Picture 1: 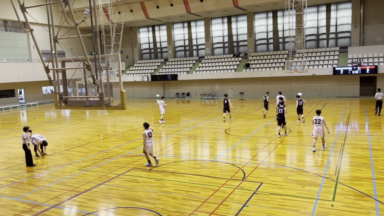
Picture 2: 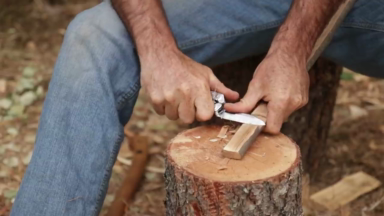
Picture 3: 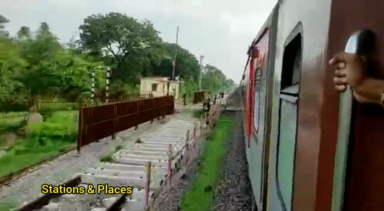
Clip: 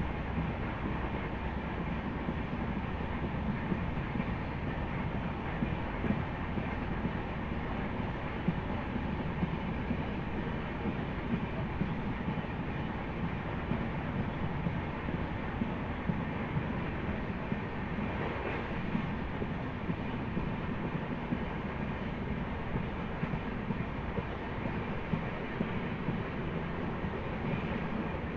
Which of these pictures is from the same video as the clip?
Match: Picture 3